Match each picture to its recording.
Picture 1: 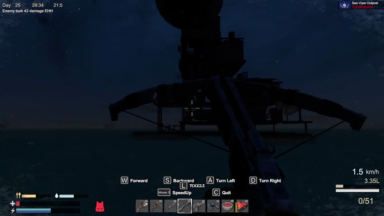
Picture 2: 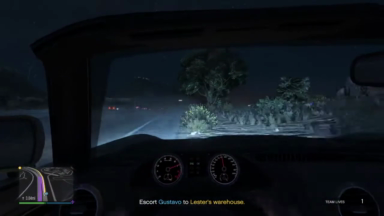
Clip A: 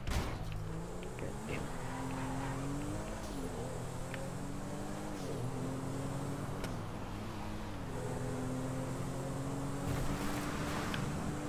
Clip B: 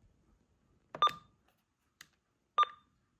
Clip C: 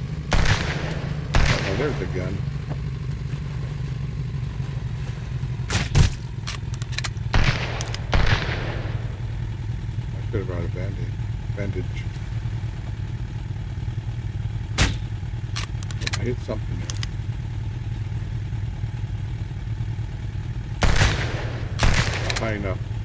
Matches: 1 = C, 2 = A